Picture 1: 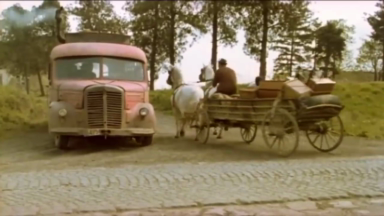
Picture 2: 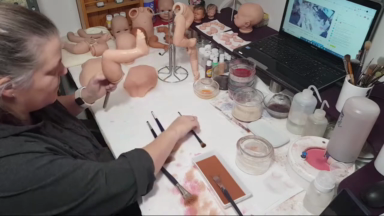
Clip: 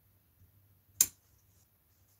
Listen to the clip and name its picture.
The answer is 2